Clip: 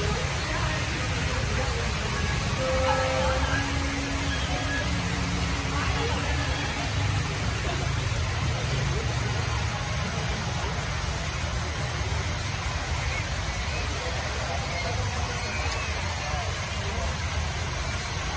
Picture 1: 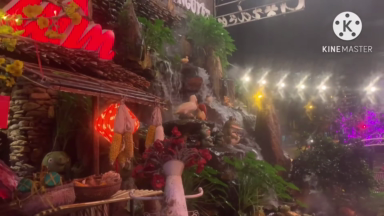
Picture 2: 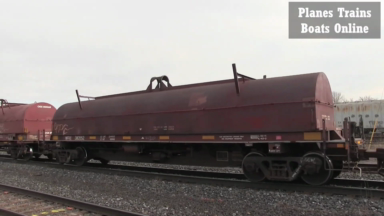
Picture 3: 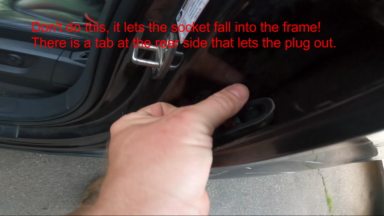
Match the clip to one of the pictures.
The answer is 1